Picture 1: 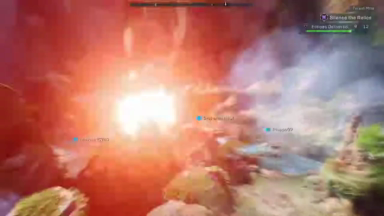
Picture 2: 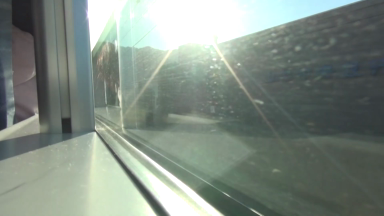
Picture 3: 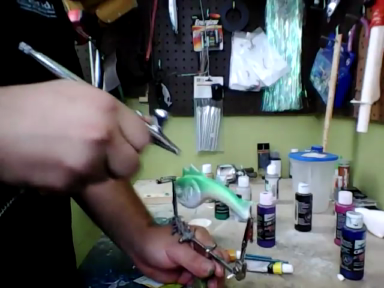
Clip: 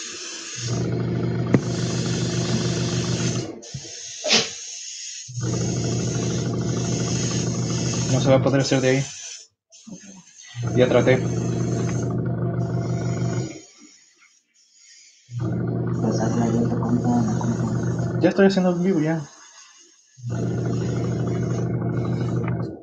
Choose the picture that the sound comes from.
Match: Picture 3